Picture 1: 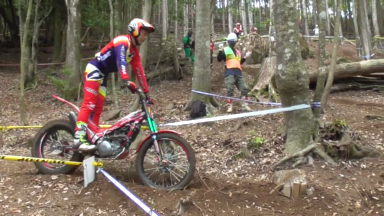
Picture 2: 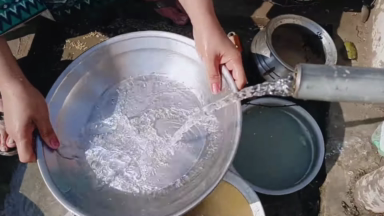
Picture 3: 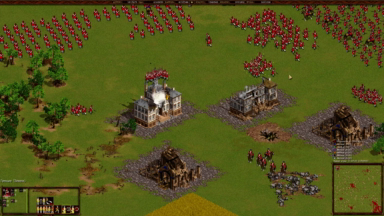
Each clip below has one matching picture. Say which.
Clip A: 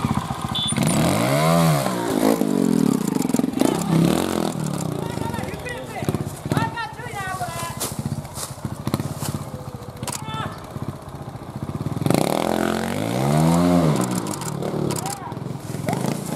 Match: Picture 1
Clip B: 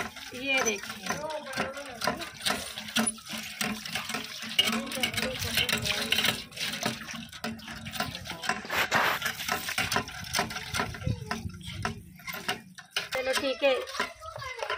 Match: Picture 2